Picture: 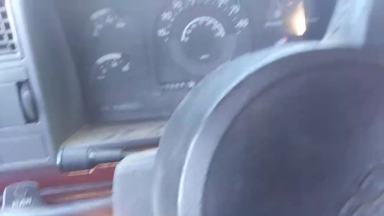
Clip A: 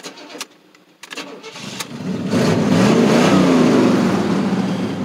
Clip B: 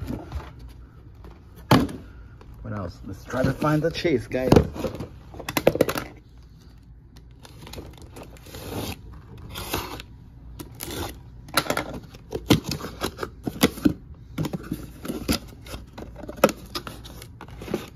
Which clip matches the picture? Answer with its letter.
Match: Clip A